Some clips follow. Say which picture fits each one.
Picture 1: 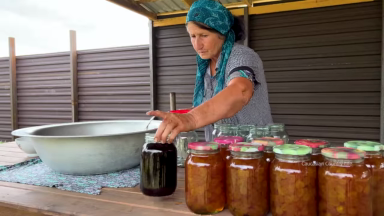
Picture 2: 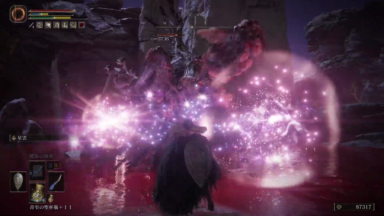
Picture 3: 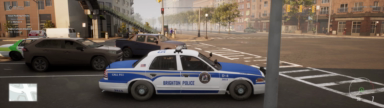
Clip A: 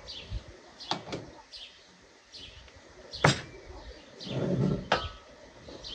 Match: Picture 1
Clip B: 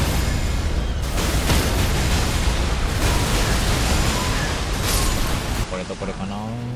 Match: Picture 2